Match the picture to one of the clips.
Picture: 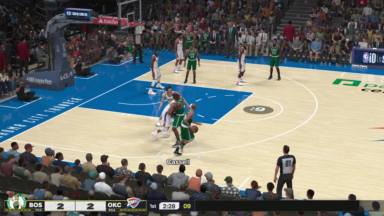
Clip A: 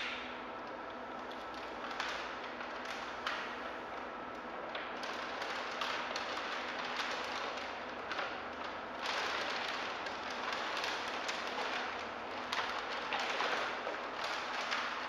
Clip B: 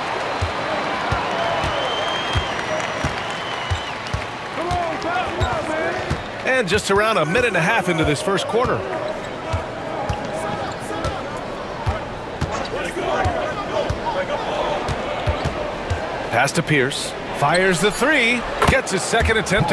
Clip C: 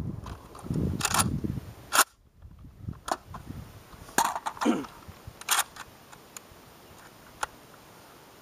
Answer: B